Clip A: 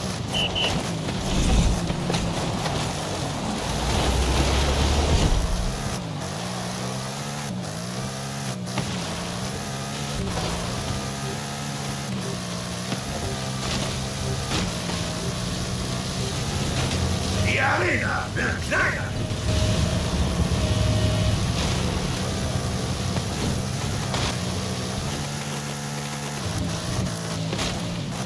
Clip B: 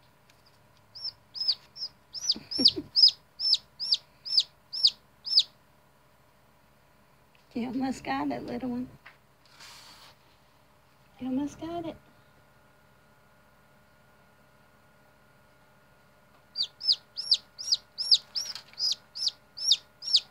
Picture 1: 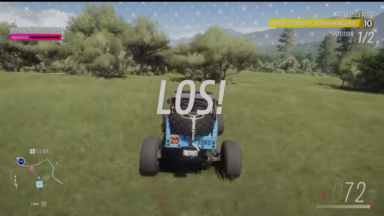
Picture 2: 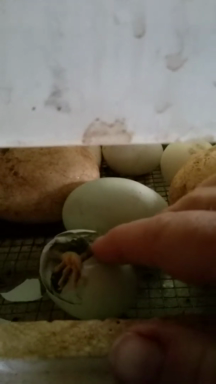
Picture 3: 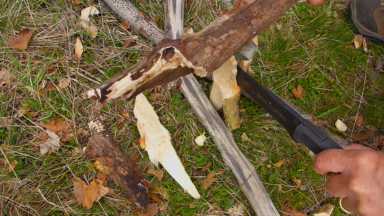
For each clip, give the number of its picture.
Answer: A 1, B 2